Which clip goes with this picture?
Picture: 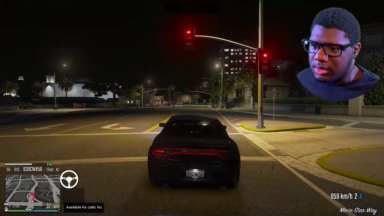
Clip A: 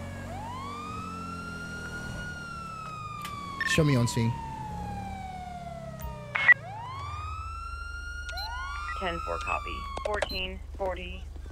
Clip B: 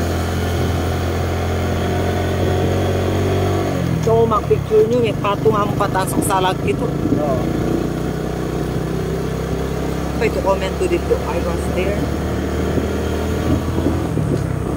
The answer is A